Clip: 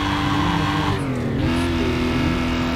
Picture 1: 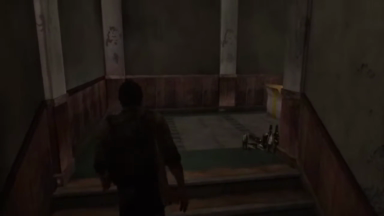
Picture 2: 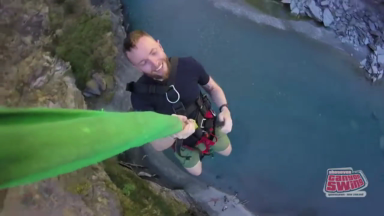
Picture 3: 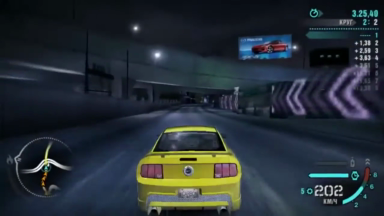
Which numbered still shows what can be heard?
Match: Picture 3